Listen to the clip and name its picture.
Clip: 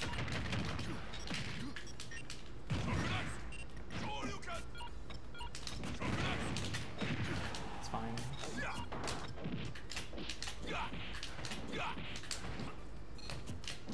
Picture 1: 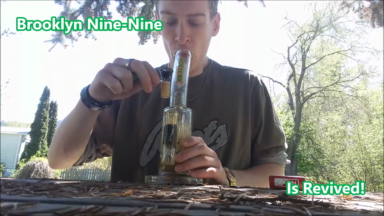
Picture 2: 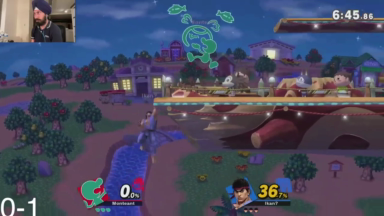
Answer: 2